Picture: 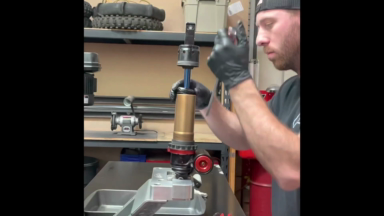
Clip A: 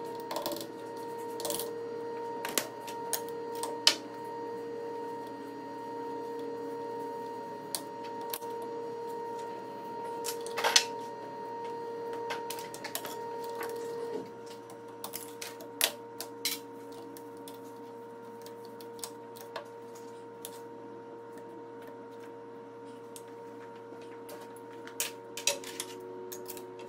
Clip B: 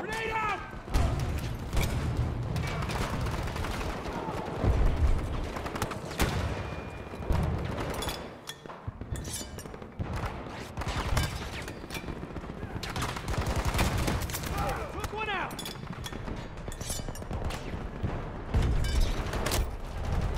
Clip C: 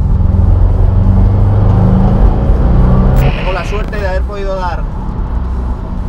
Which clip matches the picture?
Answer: A